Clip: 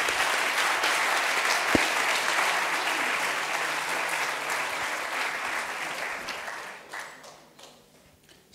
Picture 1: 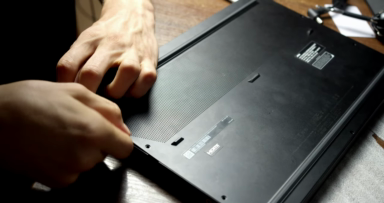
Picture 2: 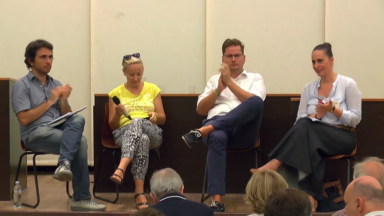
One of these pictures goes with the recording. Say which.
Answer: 2